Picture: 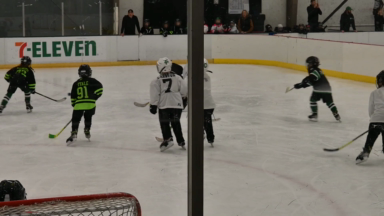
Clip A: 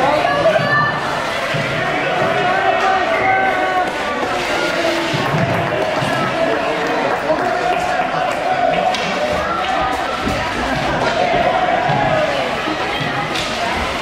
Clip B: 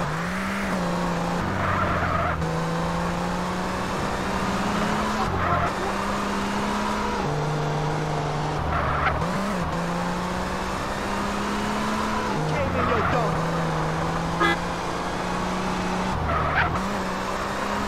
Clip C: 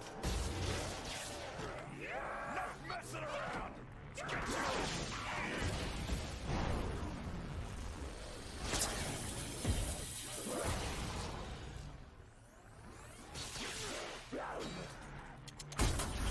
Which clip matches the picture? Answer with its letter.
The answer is A